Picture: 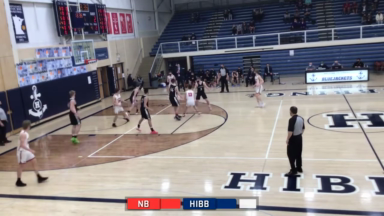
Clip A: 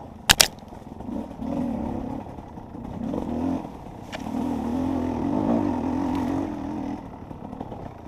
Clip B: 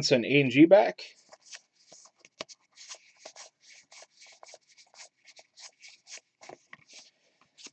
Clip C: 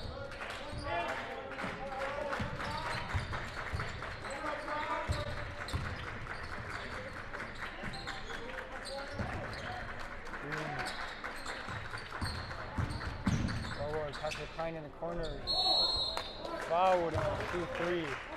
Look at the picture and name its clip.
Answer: C